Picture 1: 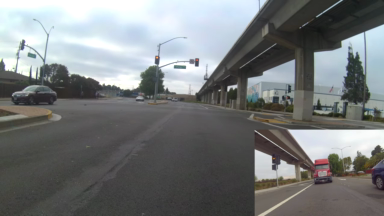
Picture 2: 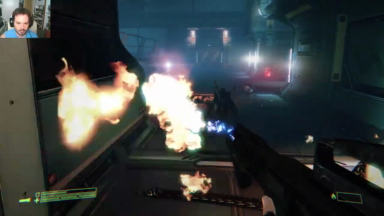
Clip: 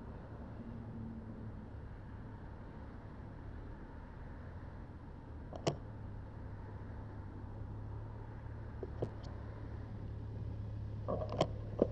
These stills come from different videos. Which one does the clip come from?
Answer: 1